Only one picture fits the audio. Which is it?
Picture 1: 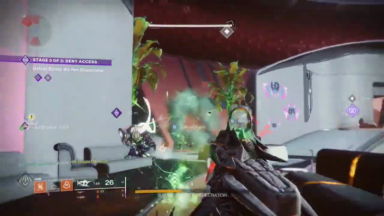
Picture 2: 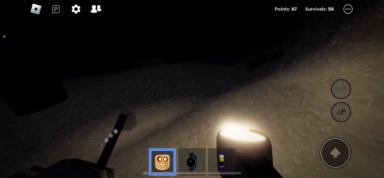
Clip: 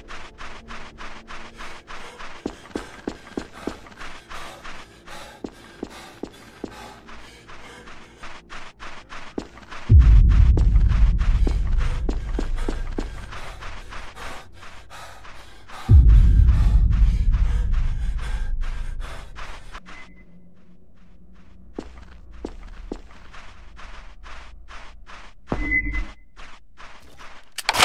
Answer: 2